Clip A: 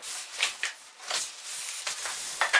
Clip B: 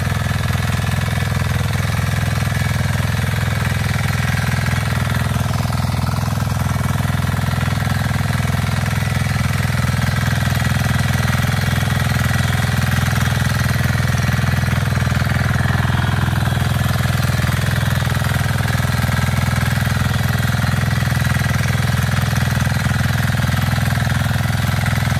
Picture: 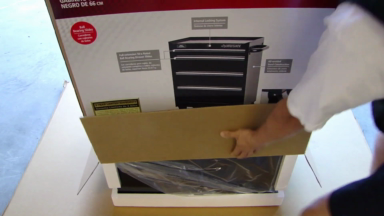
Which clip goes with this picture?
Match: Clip A